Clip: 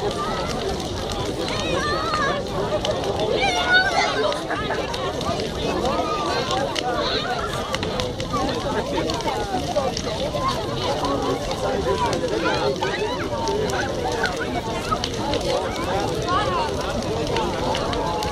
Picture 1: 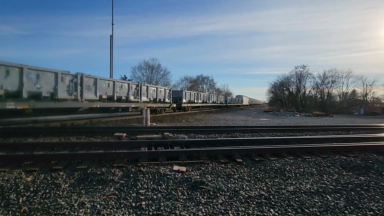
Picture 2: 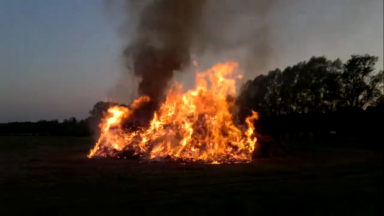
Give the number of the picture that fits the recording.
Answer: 2